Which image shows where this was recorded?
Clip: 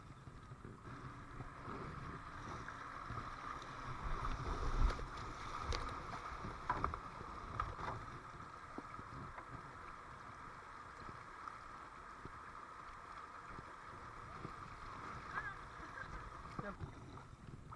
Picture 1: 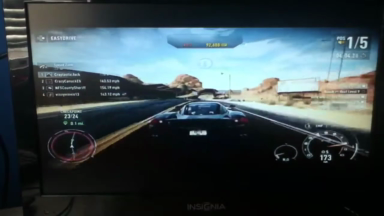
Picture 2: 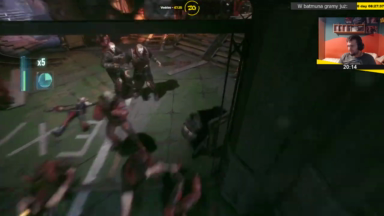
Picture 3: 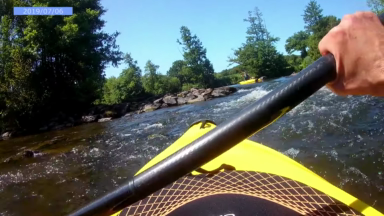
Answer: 3